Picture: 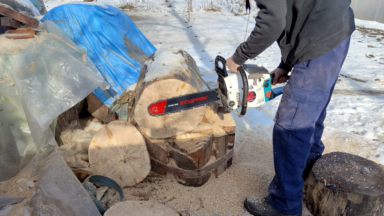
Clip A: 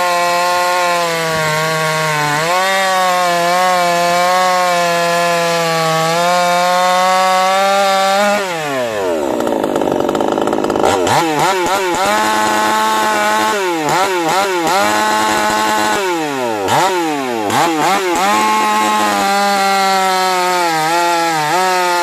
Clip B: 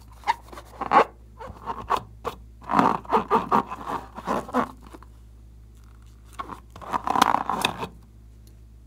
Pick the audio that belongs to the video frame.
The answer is A